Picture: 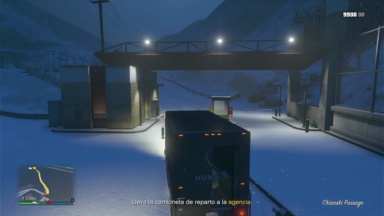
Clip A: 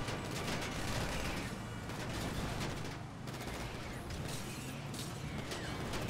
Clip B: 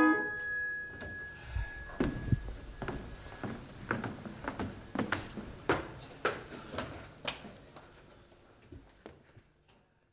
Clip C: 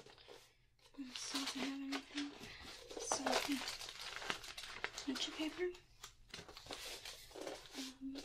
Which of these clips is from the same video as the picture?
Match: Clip A